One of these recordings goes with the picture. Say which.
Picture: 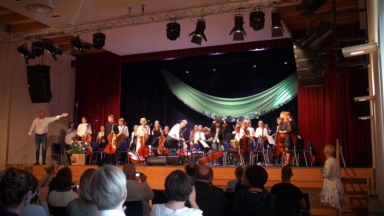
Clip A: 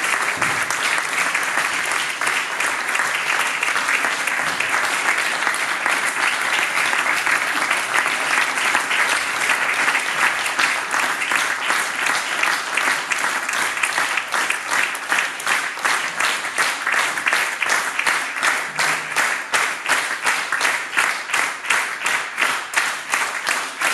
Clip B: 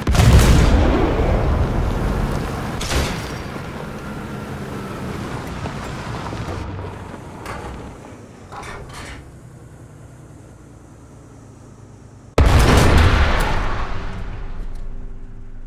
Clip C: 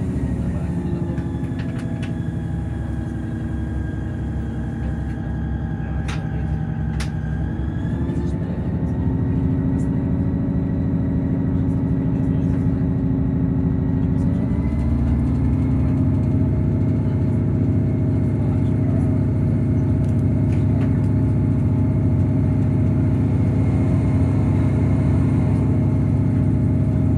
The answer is A